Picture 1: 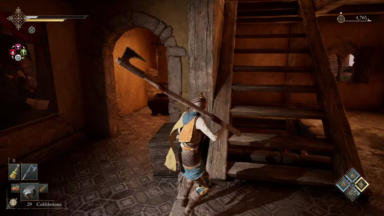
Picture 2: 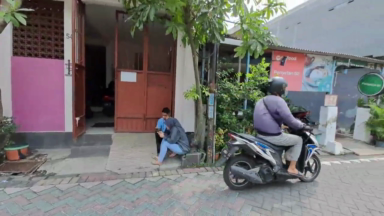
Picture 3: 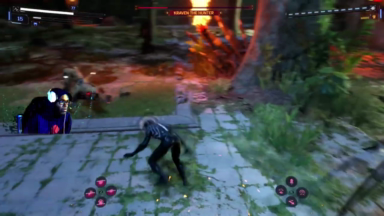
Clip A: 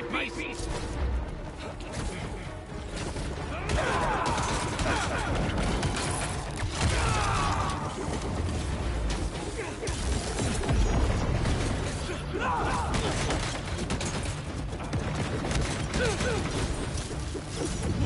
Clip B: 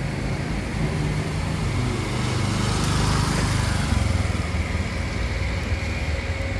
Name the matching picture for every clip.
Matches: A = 3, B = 2